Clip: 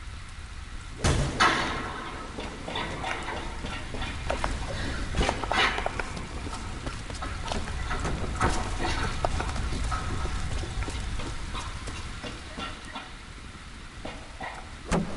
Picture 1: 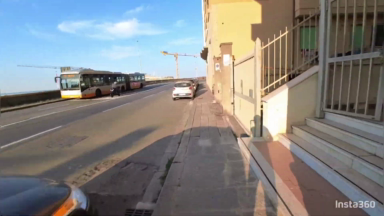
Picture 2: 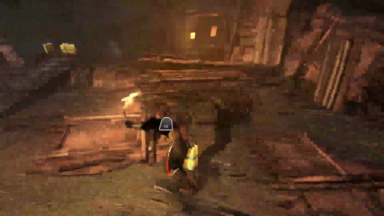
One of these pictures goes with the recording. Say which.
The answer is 2